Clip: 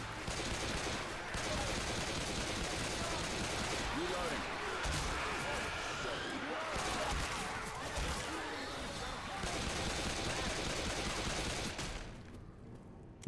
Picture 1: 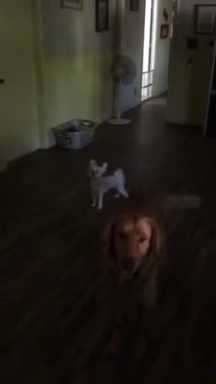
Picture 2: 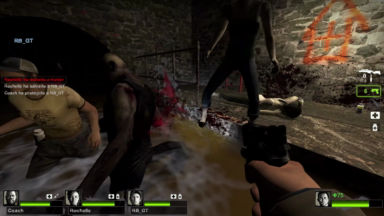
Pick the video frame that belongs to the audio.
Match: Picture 2